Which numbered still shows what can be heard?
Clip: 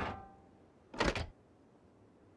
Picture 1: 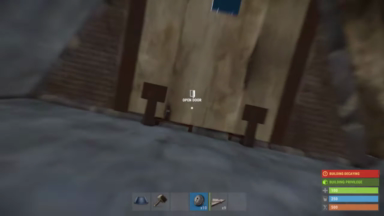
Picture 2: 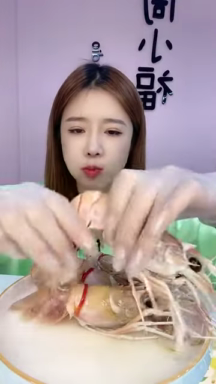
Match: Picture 1